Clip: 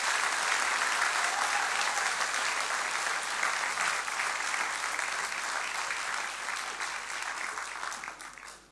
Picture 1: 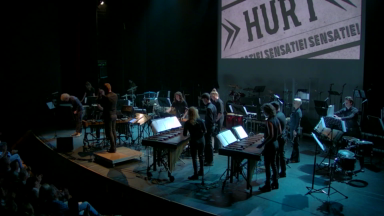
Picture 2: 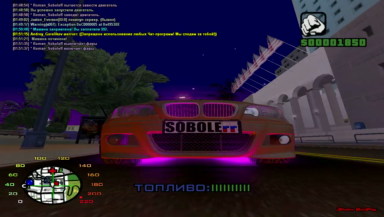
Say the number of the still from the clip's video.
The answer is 1